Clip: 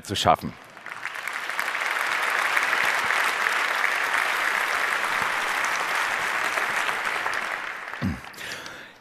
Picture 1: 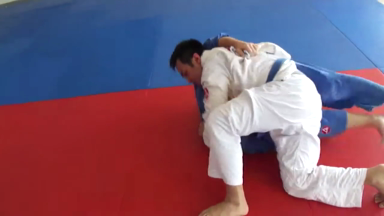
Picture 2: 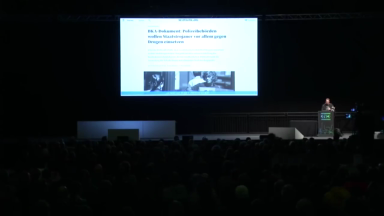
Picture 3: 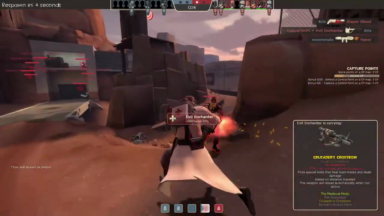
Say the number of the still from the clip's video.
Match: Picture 2